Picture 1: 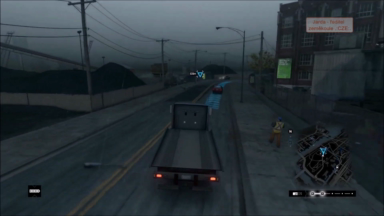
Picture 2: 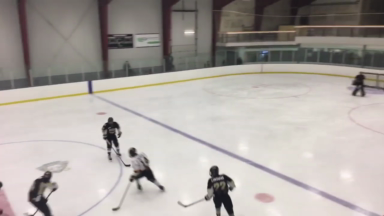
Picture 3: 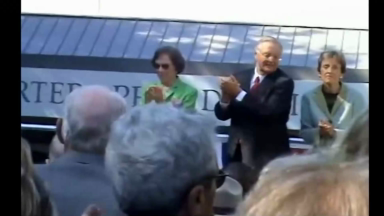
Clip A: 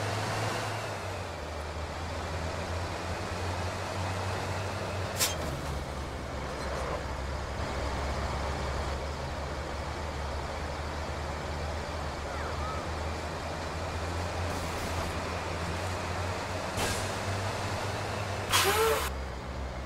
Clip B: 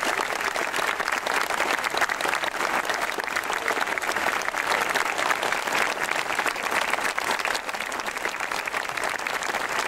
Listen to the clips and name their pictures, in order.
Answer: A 1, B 3